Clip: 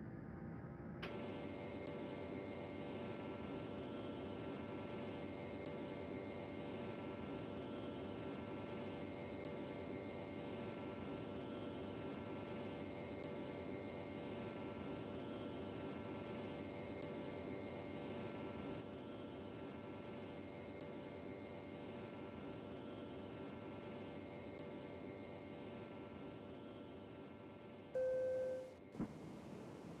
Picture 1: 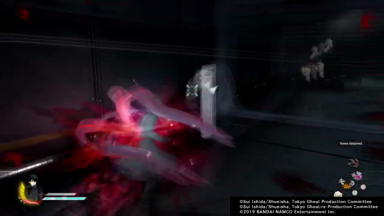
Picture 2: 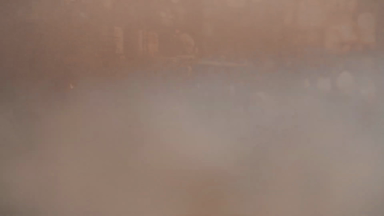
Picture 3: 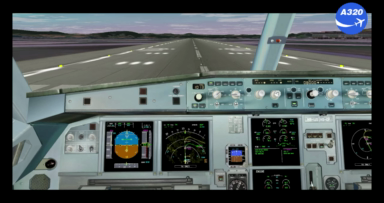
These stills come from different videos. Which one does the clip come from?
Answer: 3